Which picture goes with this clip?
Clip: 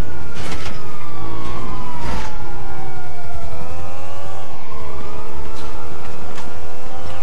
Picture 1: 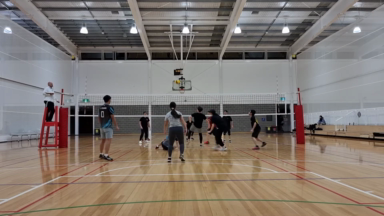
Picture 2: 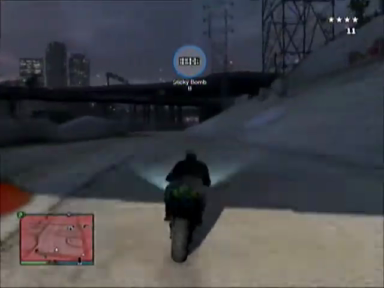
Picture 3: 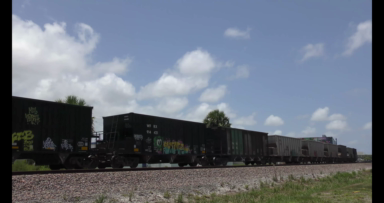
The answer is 2